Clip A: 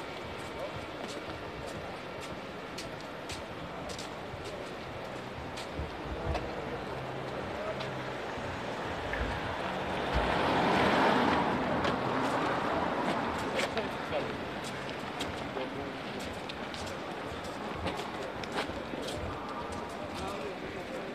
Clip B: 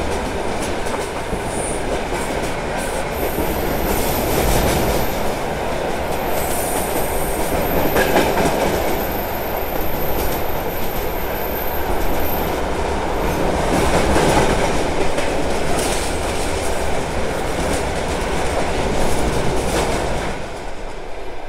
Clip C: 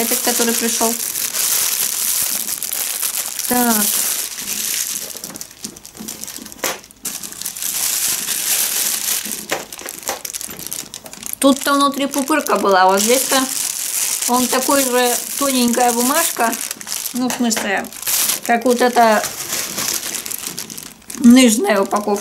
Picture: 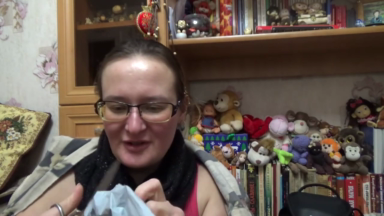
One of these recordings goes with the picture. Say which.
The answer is C